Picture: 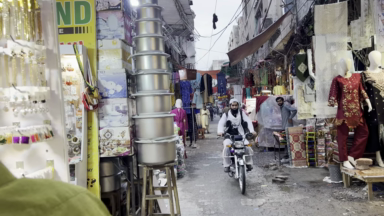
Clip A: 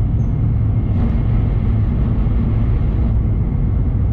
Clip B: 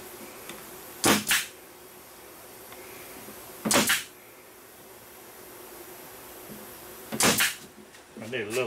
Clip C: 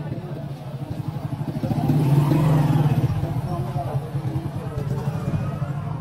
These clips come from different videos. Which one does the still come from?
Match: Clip C